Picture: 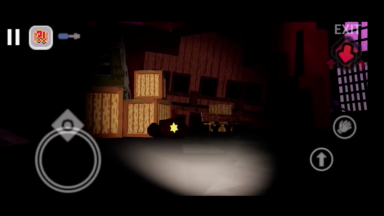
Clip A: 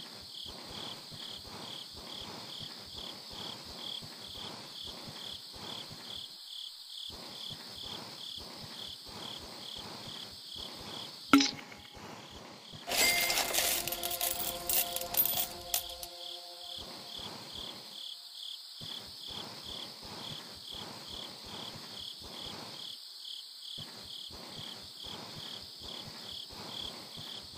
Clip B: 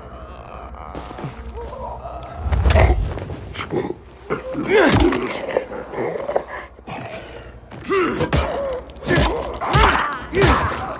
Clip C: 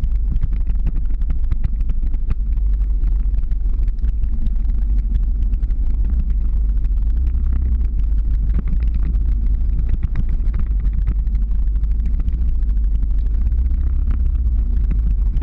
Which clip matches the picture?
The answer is A